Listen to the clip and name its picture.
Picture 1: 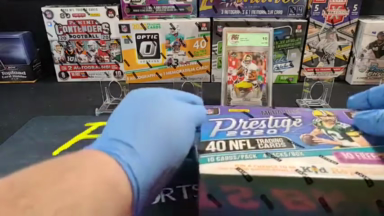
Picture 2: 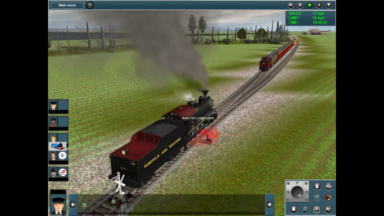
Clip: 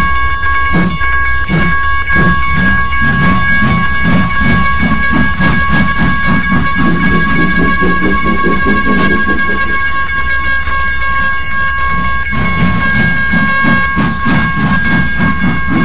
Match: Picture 2